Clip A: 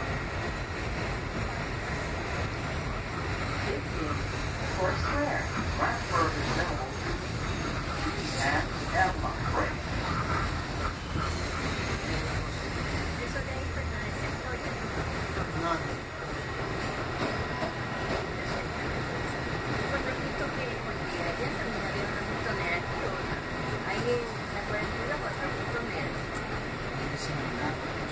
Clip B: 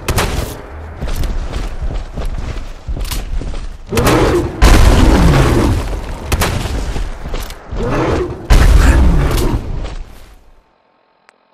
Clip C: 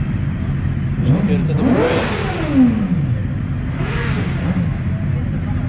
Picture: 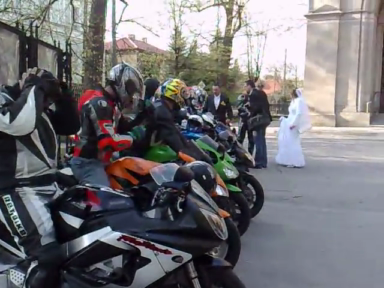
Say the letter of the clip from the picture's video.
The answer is C